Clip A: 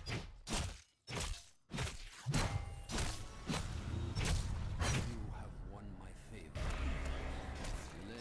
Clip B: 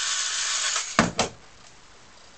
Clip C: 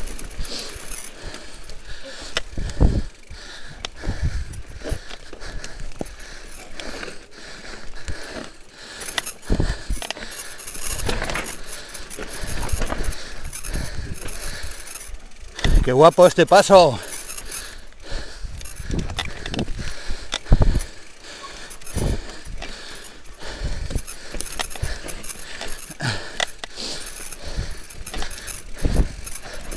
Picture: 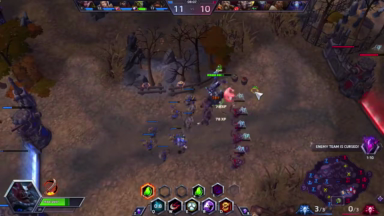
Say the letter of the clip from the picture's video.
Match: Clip A